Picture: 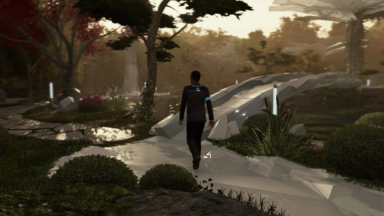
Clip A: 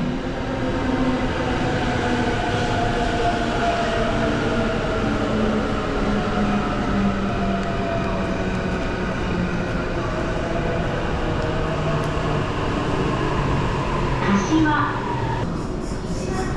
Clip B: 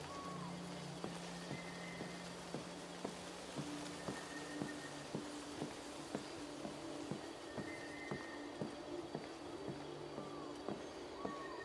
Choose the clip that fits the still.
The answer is B